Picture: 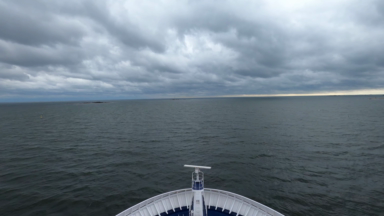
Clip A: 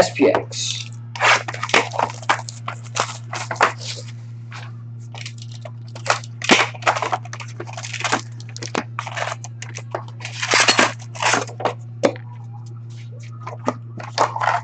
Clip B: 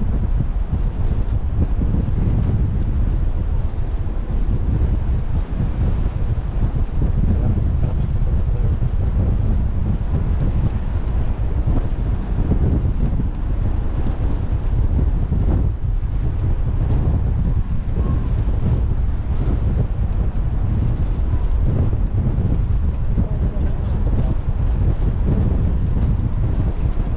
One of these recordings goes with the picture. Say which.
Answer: B